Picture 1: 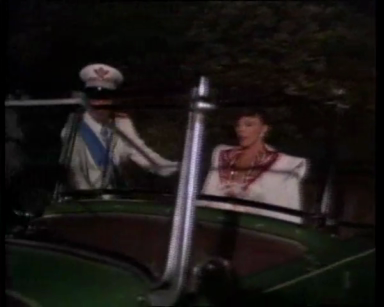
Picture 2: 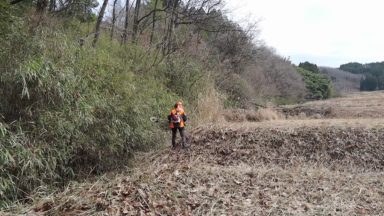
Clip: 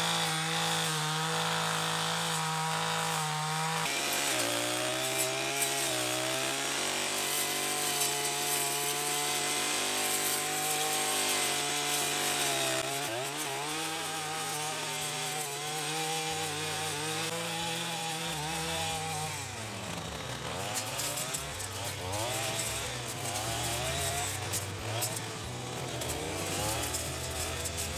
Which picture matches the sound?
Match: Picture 2